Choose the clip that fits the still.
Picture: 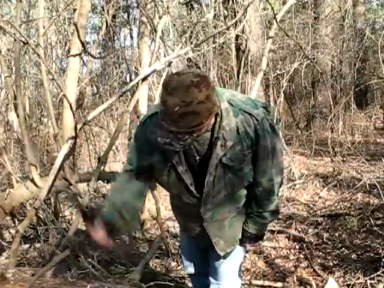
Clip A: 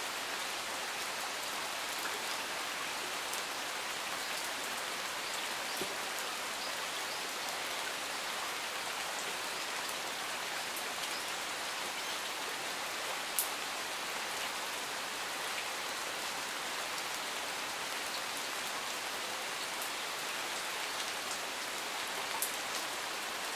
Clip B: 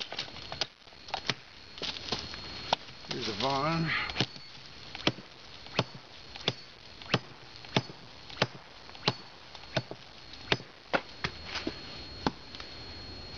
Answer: B